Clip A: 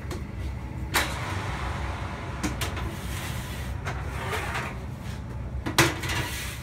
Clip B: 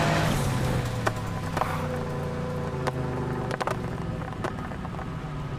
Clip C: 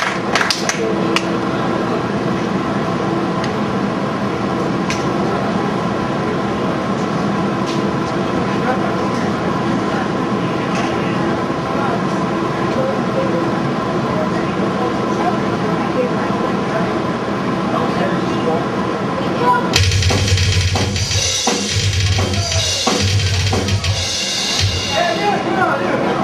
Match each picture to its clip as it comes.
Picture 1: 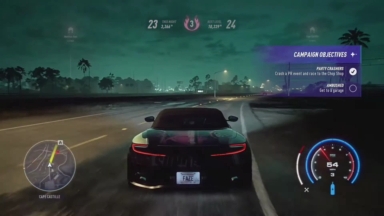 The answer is B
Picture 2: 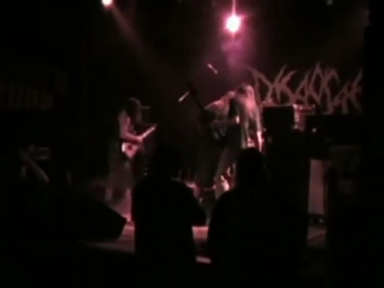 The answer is C